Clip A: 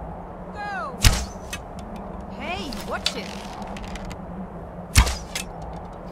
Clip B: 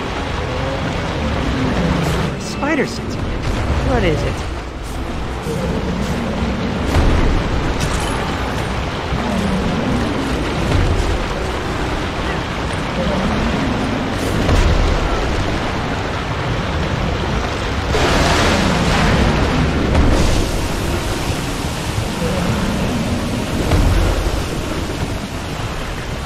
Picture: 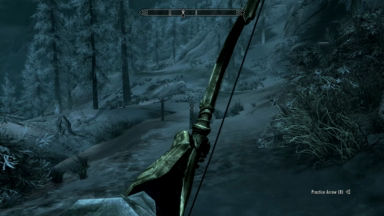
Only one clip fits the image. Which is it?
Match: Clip A